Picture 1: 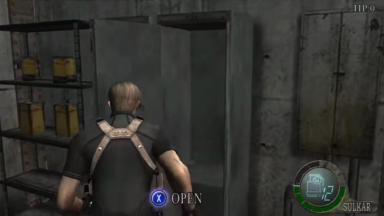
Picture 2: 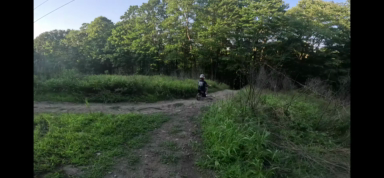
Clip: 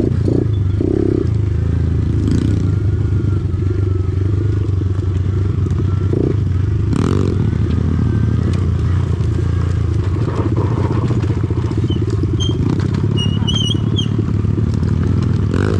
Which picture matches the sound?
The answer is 2